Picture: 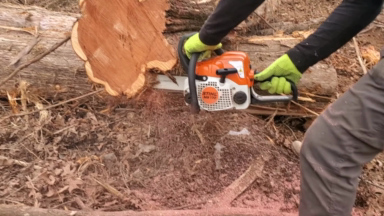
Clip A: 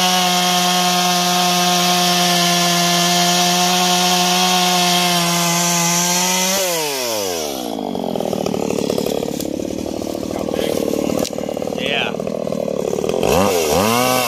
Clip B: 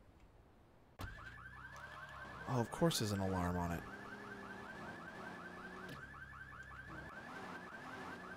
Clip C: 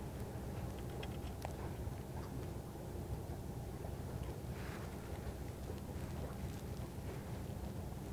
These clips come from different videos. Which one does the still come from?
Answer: A